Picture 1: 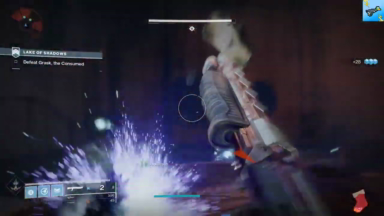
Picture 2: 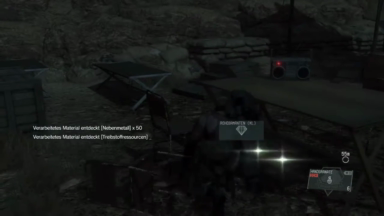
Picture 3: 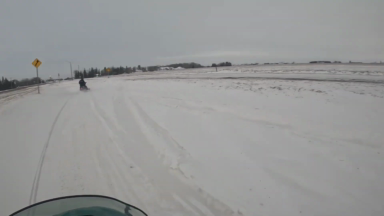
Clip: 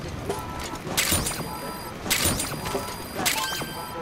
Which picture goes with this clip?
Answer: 2